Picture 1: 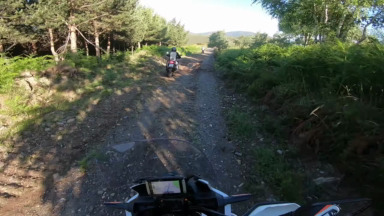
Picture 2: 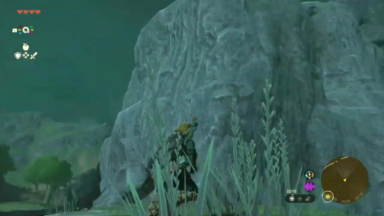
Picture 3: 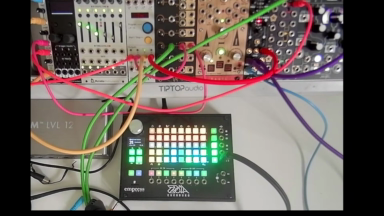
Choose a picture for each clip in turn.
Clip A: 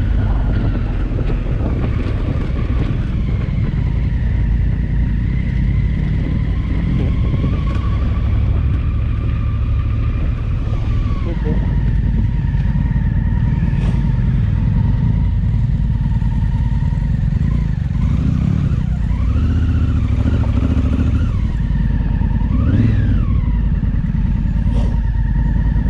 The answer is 1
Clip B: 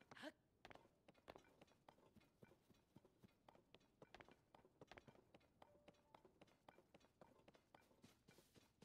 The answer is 2